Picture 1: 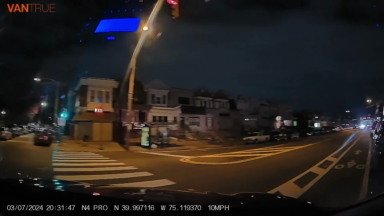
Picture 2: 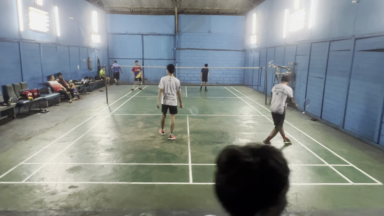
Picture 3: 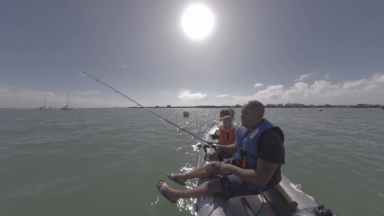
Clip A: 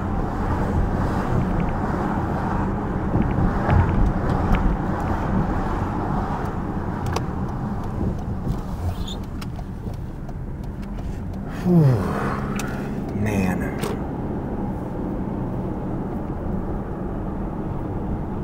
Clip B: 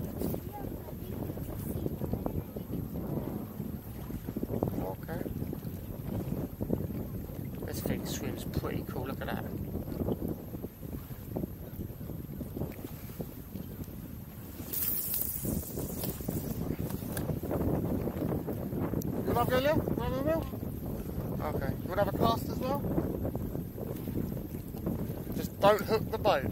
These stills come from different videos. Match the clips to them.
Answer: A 1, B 3